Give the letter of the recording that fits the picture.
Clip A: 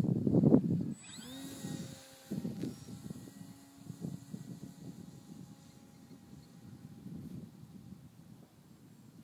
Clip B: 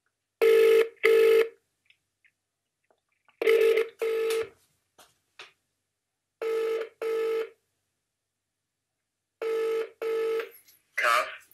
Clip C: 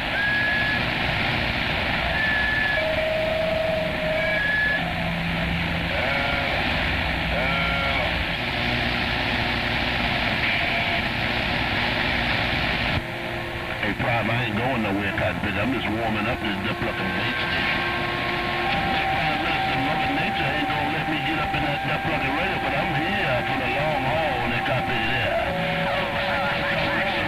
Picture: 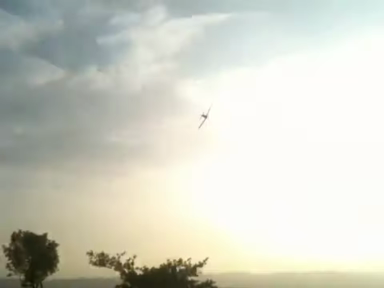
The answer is A